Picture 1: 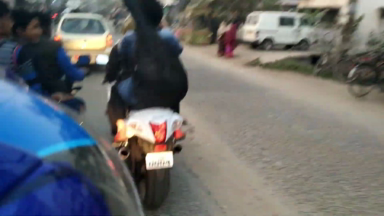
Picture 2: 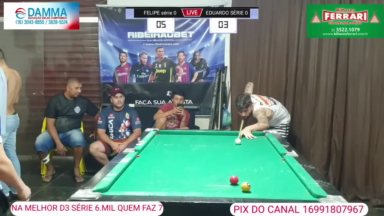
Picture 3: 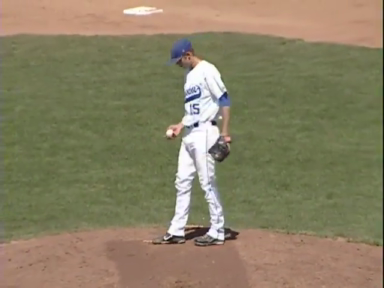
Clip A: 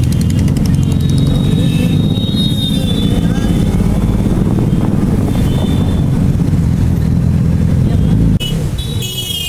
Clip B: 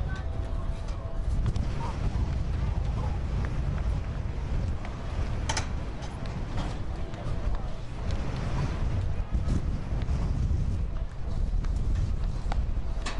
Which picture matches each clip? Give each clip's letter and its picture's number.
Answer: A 1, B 3